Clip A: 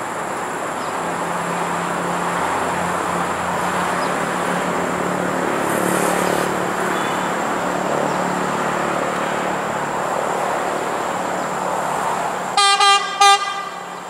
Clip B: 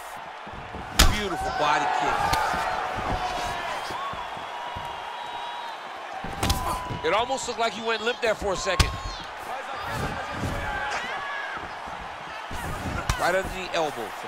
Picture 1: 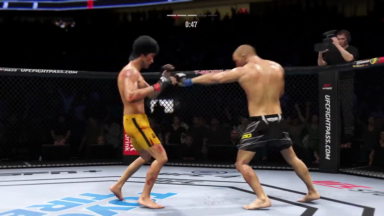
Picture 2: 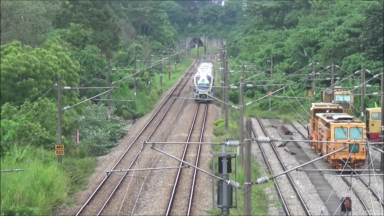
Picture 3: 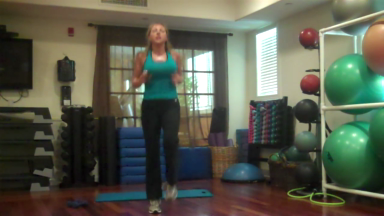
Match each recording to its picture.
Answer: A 2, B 1